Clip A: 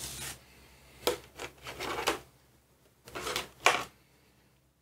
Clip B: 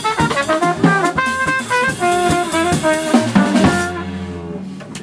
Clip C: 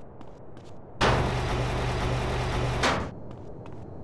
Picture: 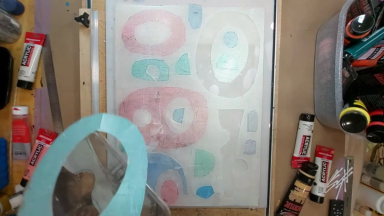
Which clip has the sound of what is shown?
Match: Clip A